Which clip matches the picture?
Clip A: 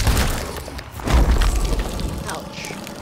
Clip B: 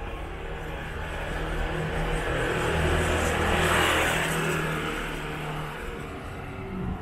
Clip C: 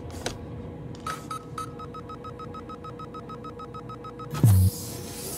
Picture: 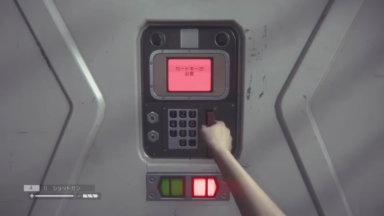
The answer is C